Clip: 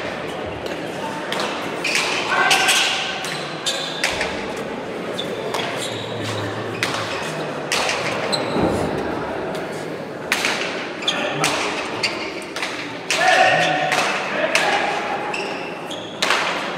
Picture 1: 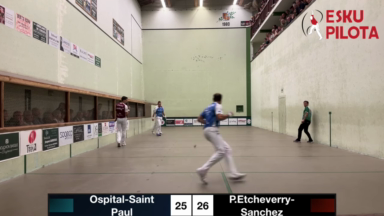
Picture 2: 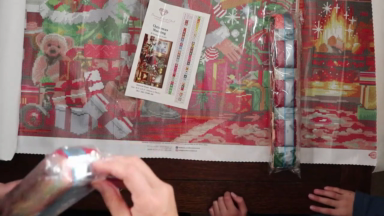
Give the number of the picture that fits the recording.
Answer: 1